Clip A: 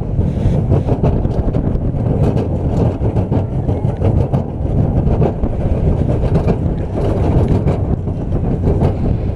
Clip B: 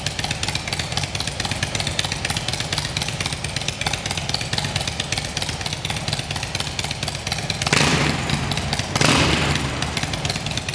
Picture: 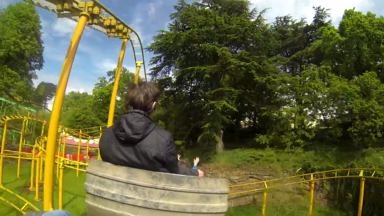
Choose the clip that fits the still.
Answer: A